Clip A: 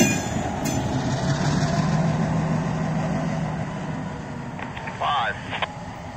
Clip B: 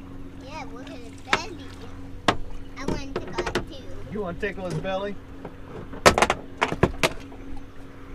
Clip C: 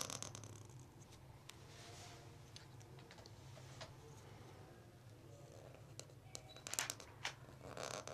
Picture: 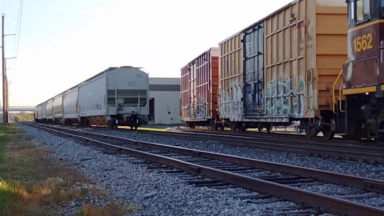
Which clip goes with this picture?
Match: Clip A